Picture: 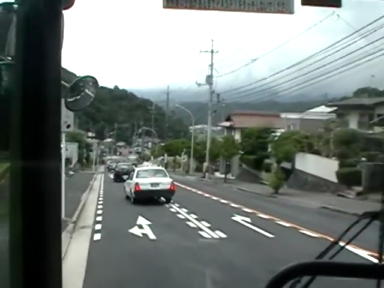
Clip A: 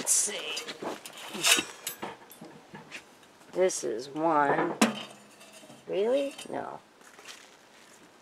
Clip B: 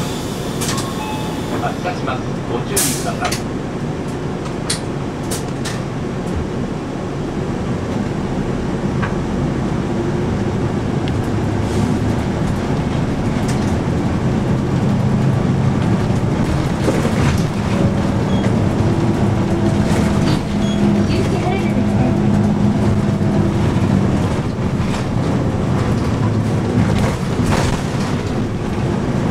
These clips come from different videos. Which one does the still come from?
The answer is B